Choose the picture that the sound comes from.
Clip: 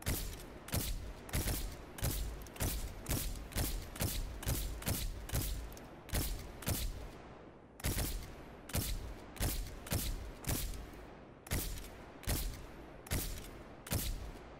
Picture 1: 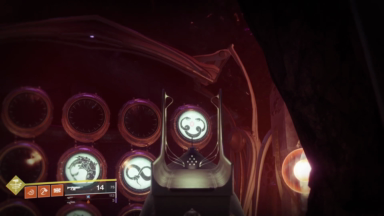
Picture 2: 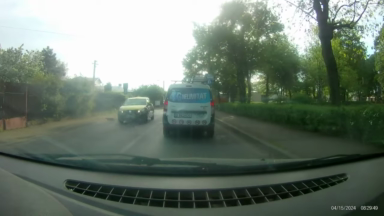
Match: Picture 1